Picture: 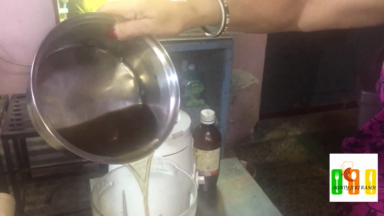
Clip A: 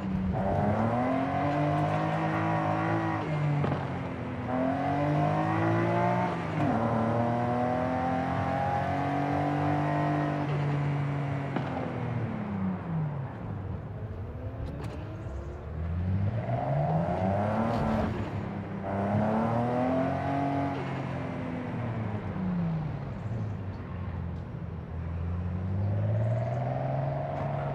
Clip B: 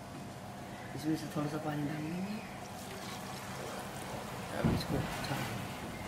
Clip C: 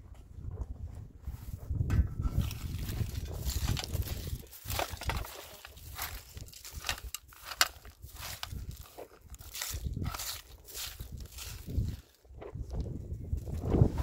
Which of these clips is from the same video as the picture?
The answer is B